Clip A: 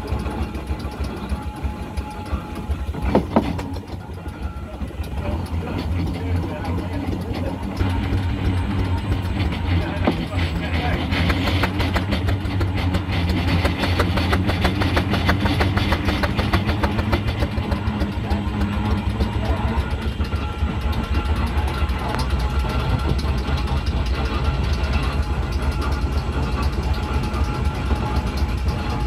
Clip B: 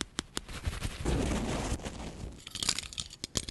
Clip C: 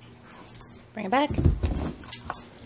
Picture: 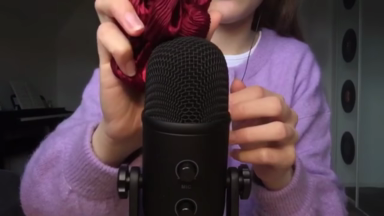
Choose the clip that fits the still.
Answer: B